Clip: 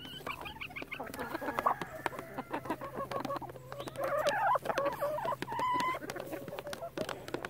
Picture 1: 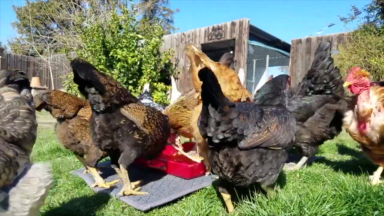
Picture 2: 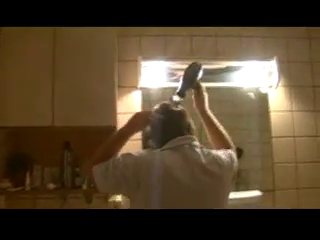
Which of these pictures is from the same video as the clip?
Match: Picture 1